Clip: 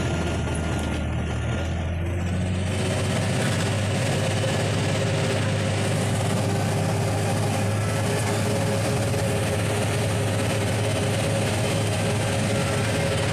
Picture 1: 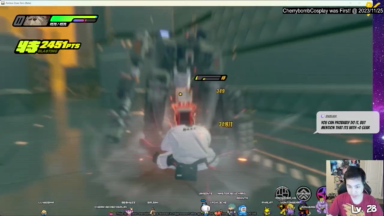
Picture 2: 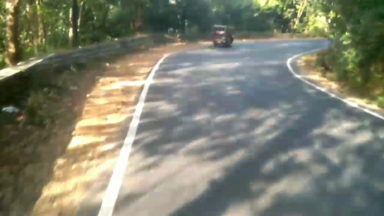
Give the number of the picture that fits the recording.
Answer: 2